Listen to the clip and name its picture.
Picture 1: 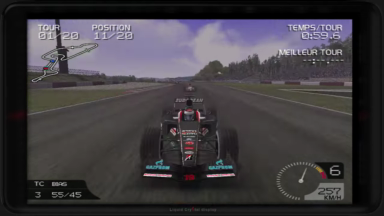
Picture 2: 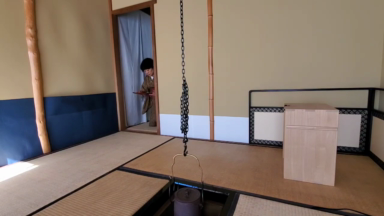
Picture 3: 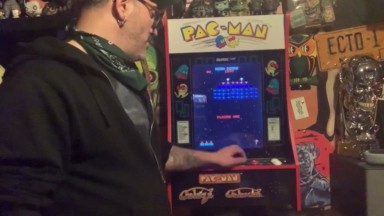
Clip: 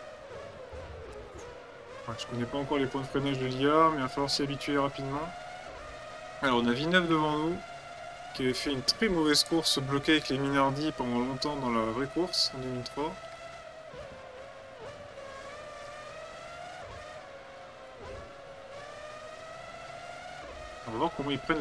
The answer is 1